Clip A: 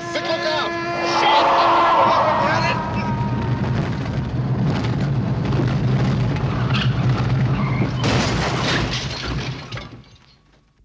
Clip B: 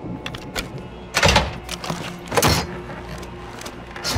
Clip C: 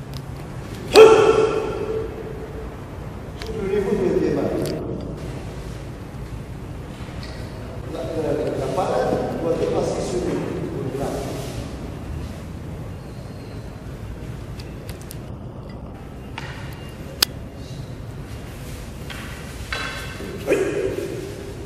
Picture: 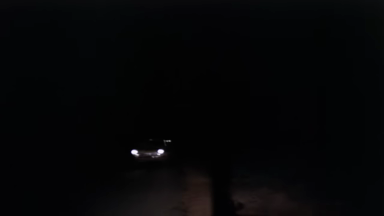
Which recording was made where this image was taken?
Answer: A